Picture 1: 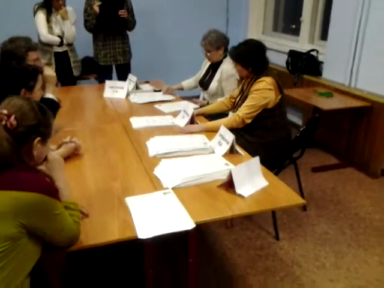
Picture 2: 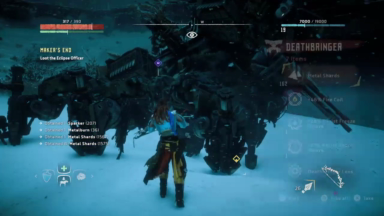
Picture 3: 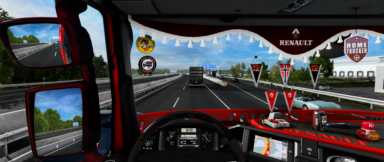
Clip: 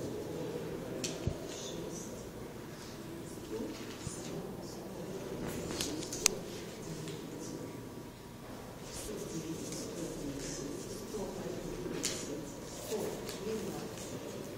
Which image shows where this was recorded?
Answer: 1